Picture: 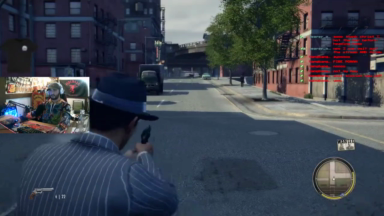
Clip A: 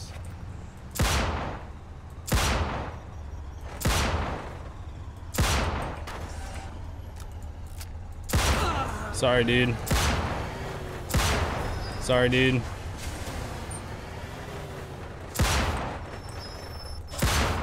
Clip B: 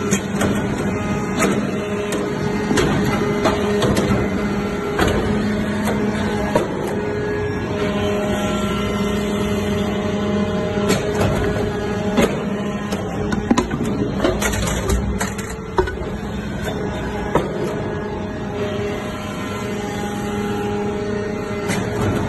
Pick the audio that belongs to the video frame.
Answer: A